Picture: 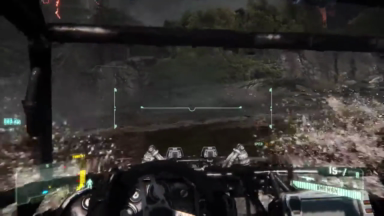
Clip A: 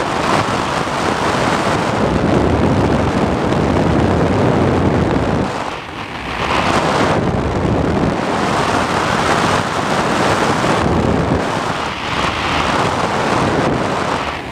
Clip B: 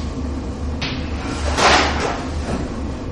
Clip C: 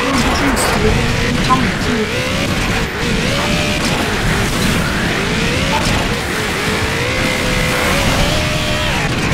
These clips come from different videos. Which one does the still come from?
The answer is C